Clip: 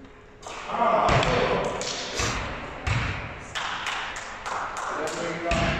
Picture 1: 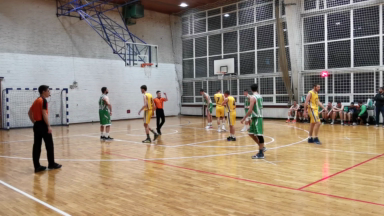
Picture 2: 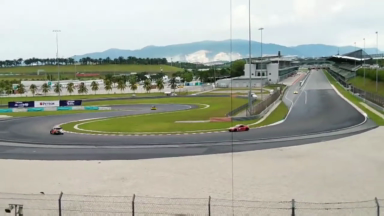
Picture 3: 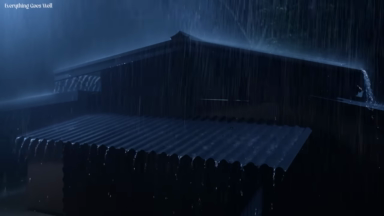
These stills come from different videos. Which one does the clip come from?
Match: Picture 1